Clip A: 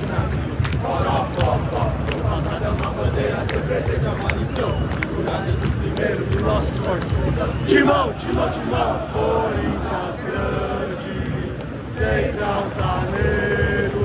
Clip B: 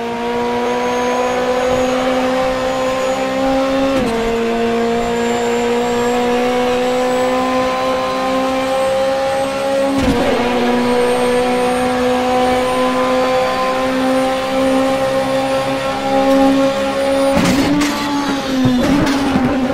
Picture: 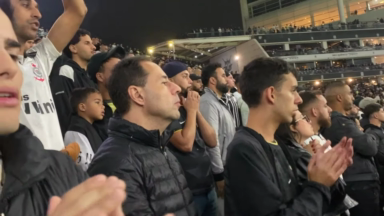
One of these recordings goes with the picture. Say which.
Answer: A